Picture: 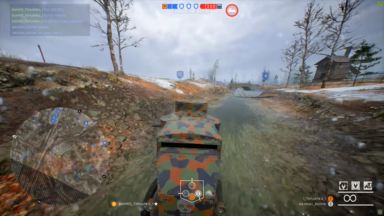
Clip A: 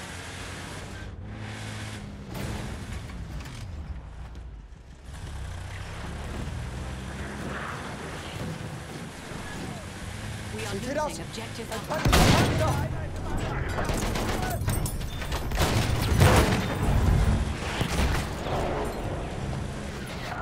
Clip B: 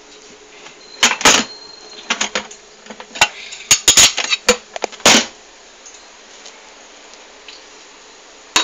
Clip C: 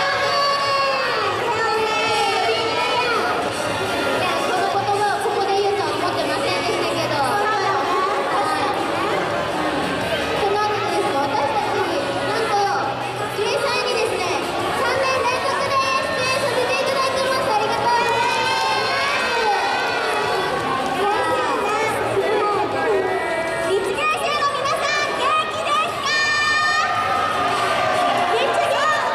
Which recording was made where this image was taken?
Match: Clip A